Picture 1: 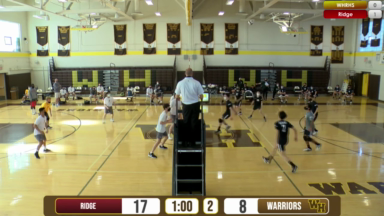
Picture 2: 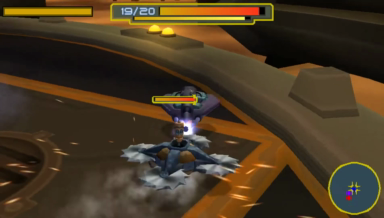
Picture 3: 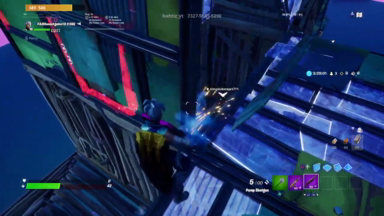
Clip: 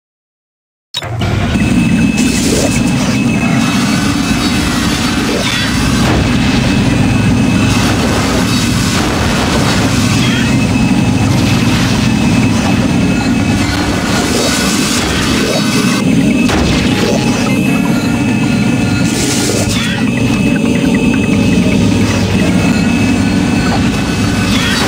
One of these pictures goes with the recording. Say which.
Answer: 2